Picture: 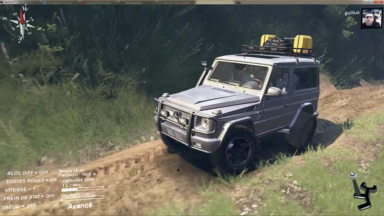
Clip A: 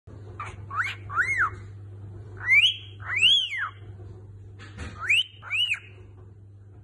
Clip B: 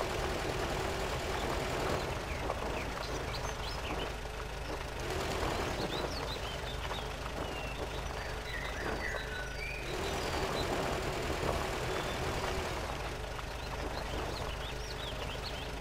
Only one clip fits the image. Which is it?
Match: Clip B